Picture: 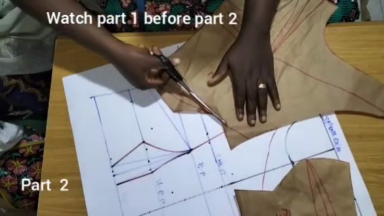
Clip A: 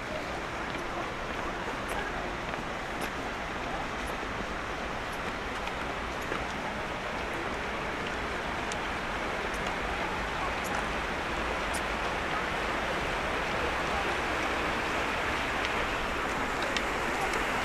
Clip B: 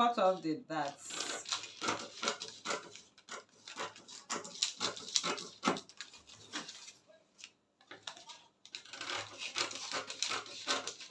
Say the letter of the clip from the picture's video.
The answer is B